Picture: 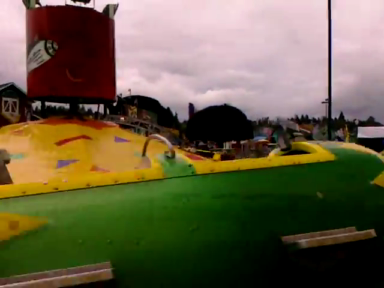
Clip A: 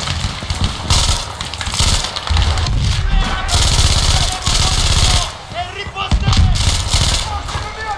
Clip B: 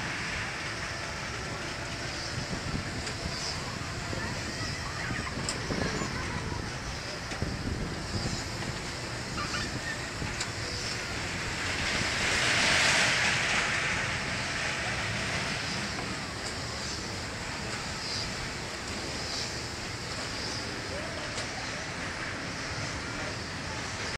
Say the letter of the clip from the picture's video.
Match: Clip B